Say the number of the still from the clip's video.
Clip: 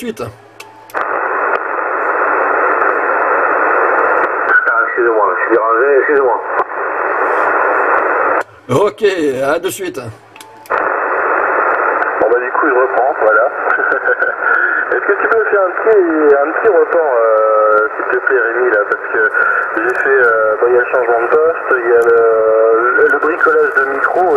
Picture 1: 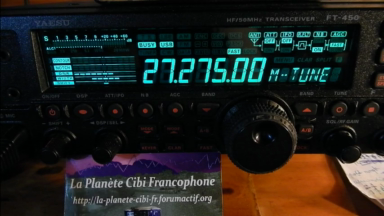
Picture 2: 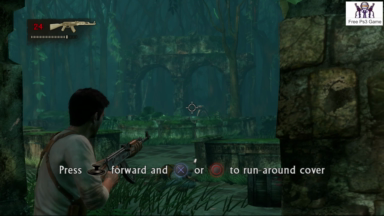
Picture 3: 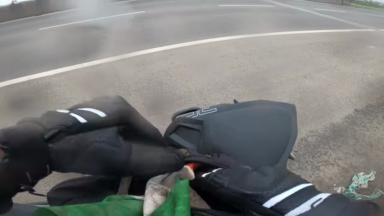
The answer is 1